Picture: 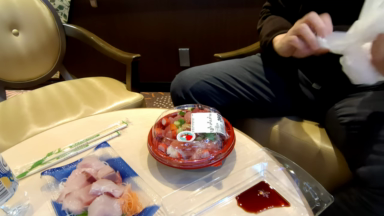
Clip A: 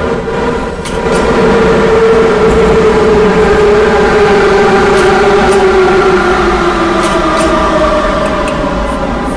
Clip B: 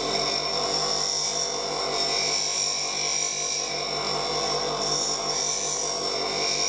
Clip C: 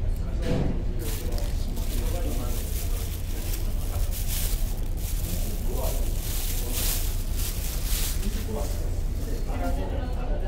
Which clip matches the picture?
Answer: C